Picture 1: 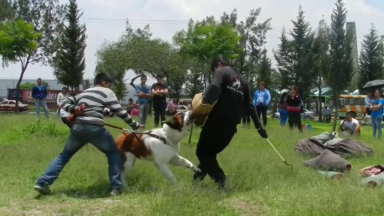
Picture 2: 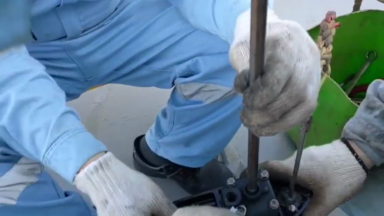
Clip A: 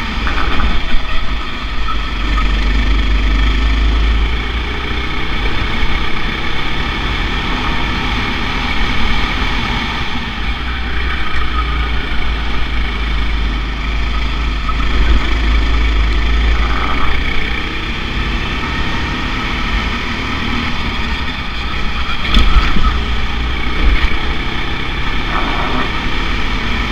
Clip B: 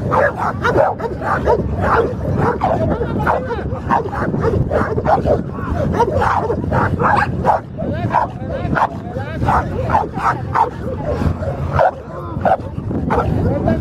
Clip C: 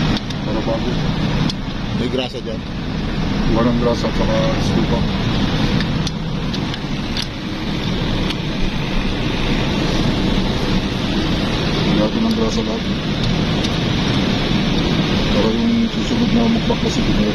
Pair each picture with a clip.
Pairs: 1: B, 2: C